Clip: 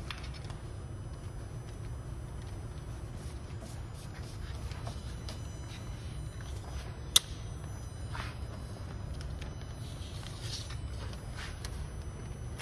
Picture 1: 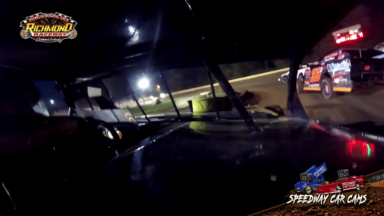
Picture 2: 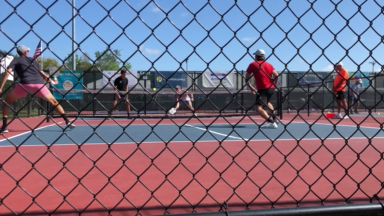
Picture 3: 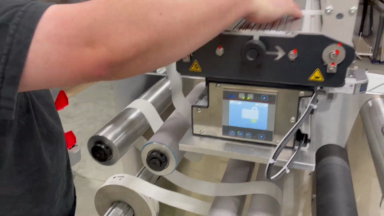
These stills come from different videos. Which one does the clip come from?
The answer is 3